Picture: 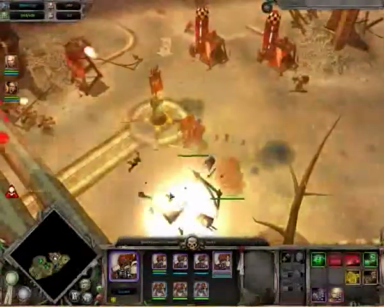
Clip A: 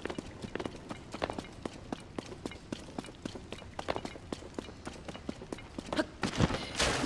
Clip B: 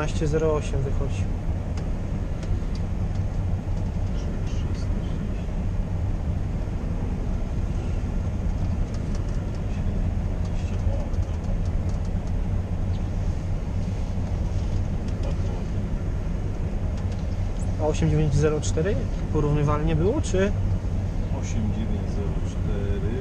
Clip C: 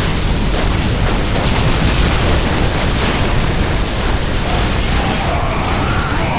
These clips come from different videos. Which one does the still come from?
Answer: C